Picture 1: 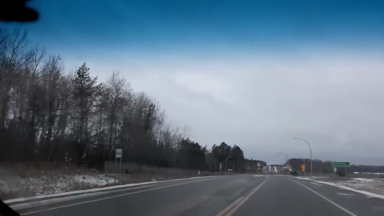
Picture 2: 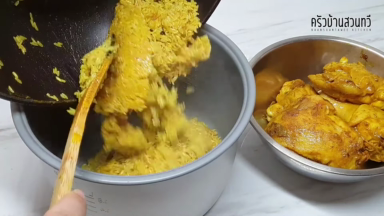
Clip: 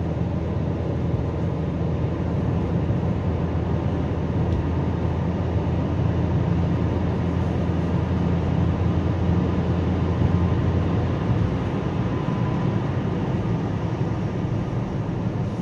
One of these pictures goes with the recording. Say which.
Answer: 1